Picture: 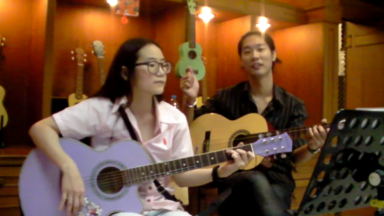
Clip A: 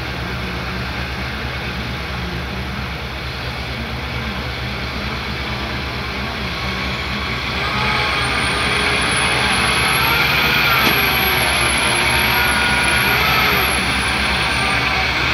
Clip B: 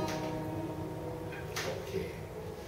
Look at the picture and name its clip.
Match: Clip B